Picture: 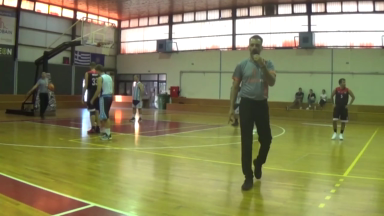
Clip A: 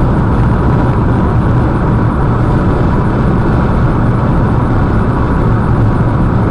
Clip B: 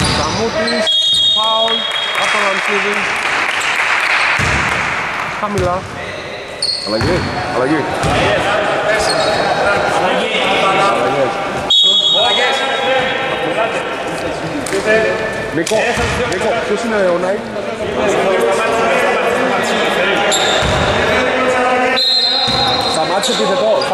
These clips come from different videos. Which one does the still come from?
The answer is B